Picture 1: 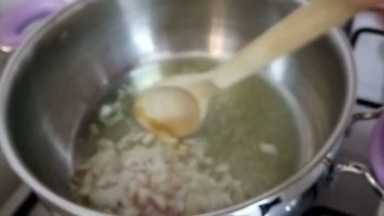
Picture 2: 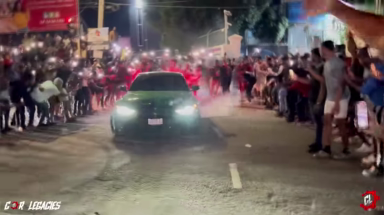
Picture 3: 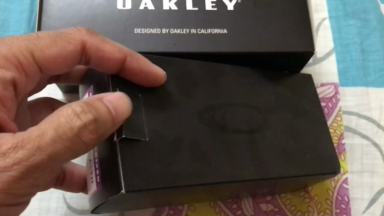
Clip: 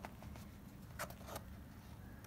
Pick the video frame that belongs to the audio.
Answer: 3